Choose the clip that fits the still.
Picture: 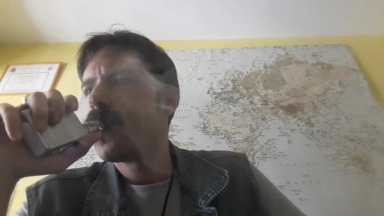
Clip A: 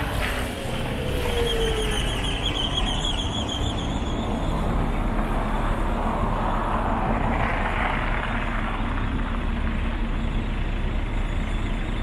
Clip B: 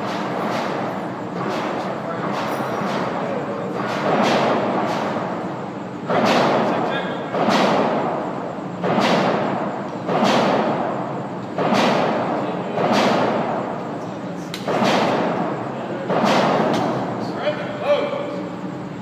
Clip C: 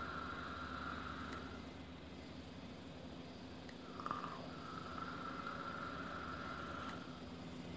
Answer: C